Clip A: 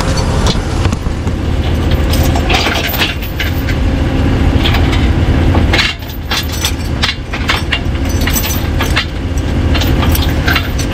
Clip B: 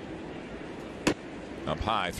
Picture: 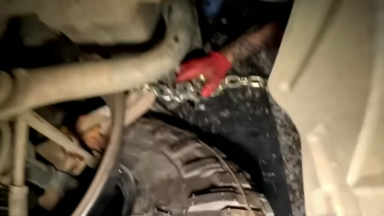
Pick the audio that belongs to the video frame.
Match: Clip A